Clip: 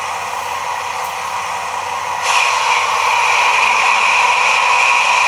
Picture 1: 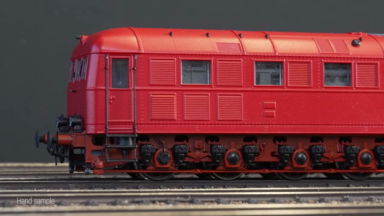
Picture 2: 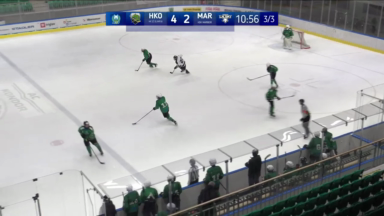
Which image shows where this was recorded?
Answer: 1